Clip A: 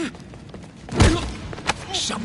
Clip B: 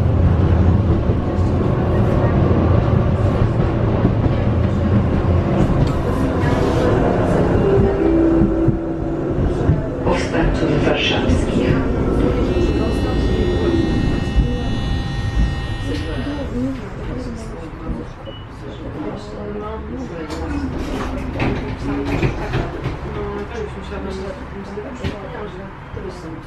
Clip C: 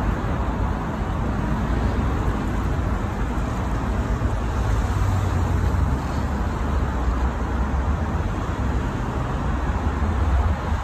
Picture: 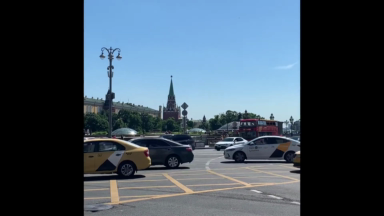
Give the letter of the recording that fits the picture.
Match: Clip C